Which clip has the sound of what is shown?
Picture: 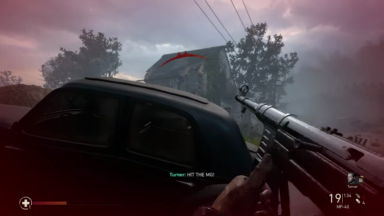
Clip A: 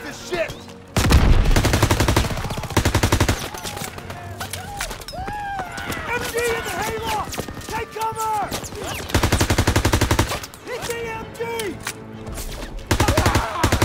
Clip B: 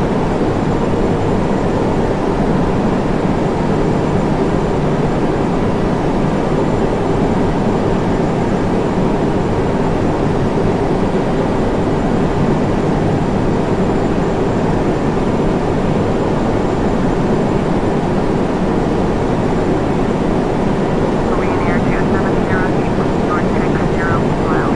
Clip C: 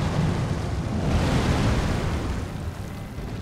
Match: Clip A